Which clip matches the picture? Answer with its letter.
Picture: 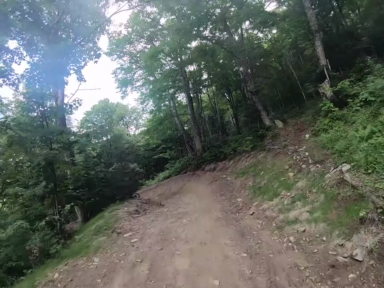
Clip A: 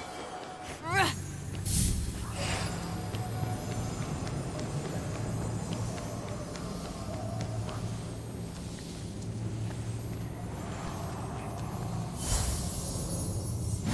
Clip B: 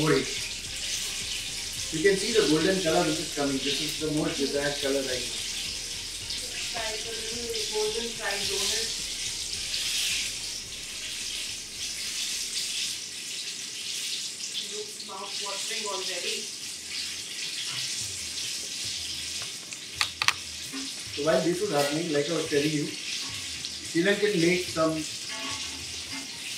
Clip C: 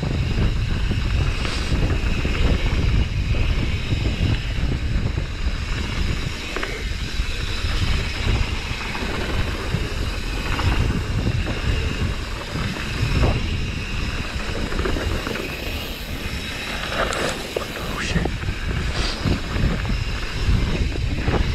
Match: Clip C